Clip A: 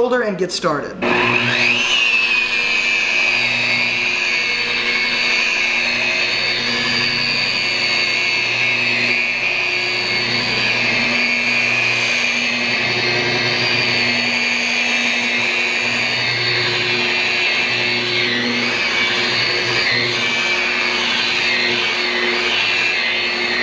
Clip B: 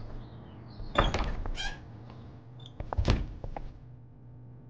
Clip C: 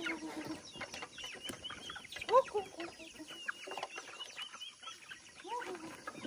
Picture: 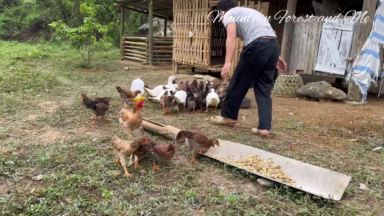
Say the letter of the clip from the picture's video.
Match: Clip C